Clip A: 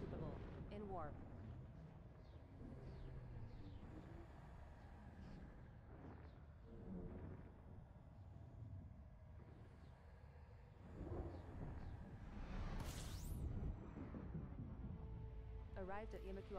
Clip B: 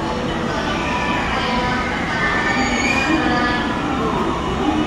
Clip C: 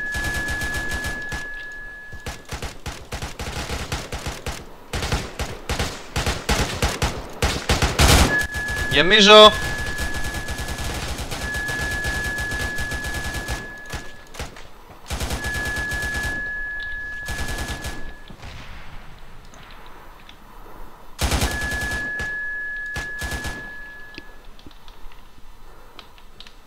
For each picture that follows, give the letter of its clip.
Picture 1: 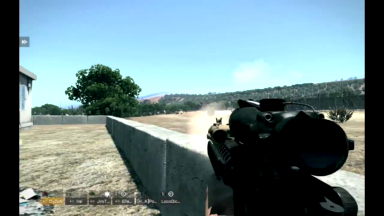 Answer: C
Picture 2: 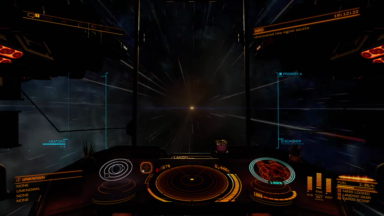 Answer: A